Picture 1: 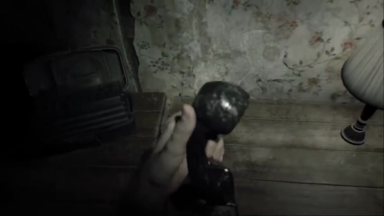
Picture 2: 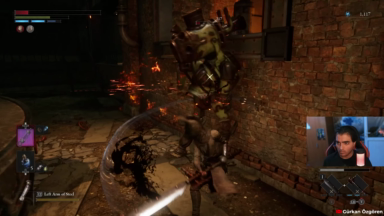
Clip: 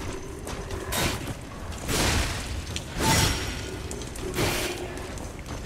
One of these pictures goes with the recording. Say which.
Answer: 2